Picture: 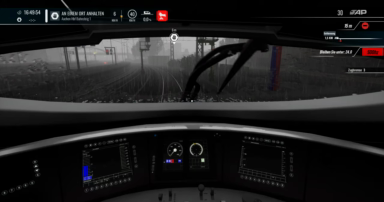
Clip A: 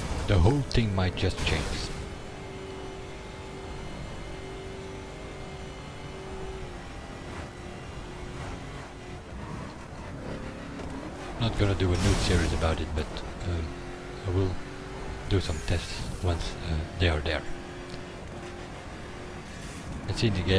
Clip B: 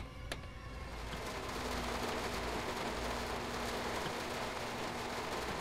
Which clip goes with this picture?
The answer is B